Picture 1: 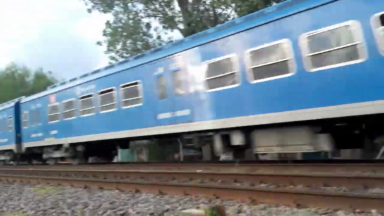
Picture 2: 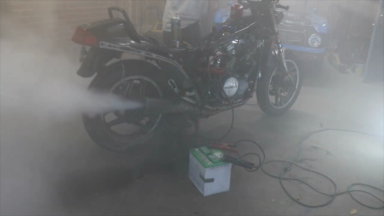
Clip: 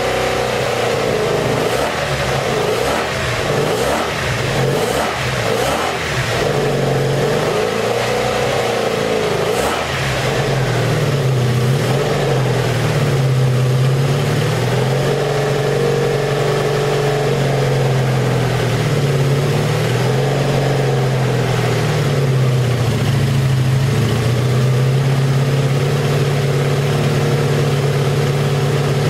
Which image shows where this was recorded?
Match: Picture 2